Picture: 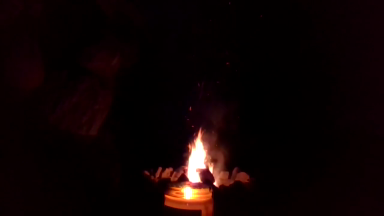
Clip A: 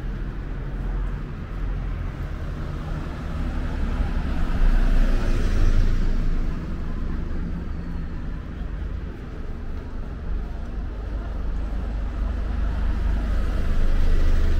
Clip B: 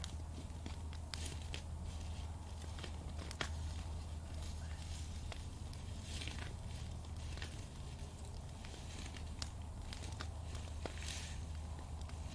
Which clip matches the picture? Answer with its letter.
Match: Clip B